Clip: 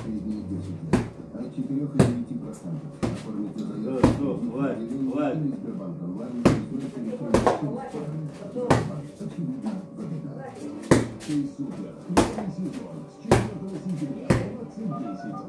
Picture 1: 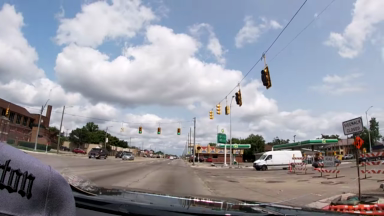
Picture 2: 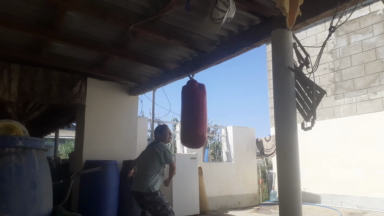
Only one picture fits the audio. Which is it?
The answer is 2